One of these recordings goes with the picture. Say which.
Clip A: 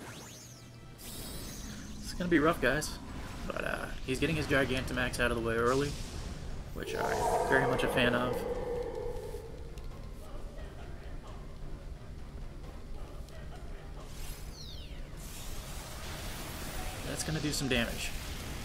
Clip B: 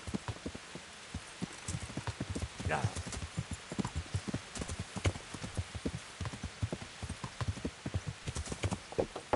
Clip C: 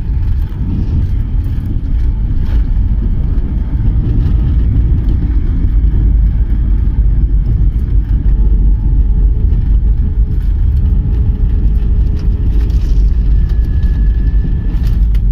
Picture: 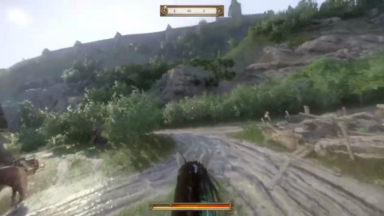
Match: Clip B